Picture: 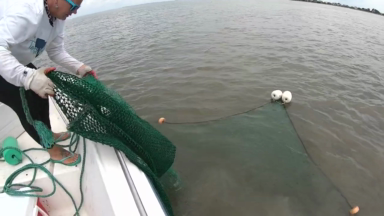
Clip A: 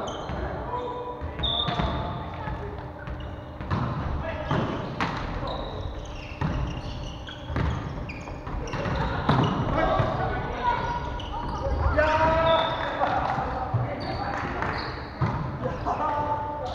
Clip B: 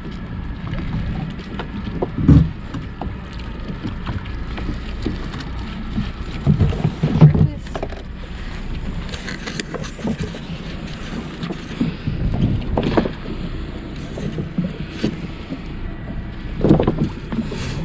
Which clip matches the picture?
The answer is B